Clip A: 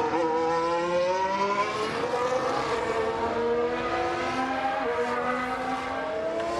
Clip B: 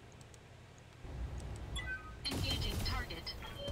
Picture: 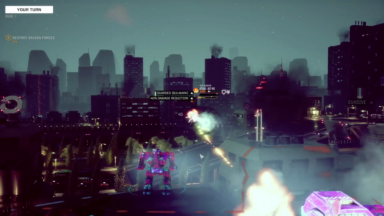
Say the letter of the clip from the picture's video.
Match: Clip B